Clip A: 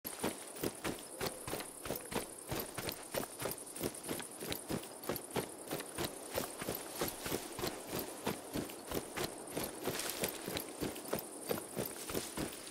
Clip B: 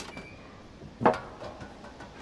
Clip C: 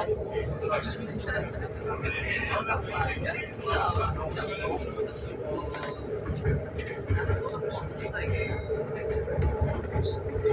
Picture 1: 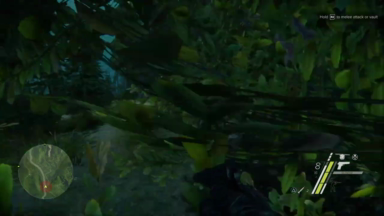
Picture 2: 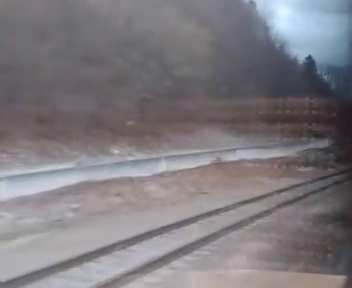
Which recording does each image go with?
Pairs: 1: A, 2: C